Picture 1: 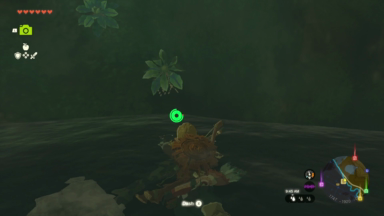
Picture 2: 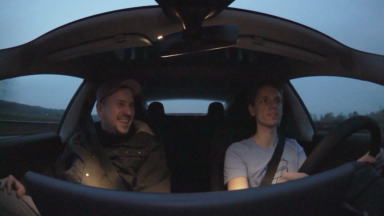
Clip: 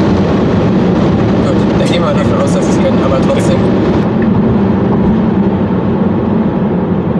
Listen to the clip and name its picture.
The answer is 2